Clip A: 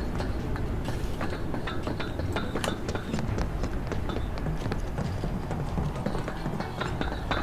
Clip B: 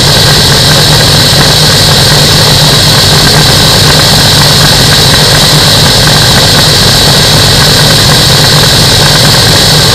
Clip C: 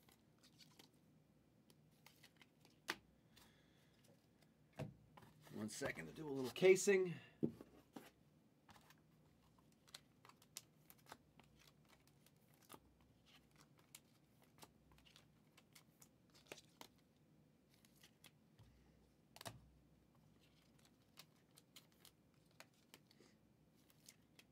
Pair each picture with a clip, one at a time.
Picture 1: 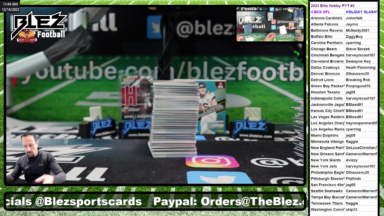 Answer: C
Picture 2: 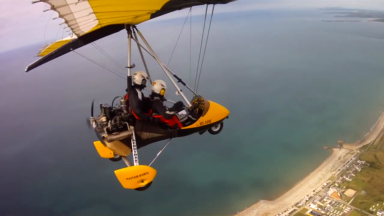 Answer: B